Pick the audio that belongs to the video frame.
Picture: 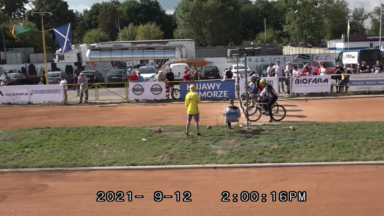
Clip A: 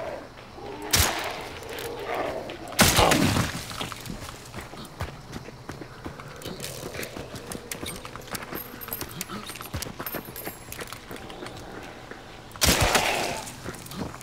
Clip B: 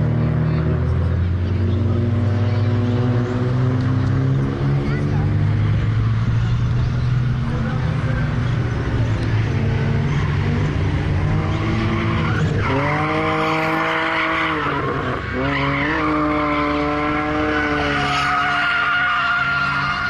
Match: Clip B